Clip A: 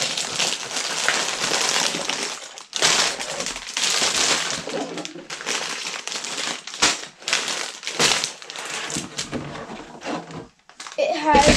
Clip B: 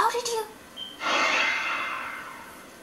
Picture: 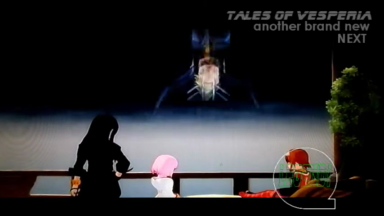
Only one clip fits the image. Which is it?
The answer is B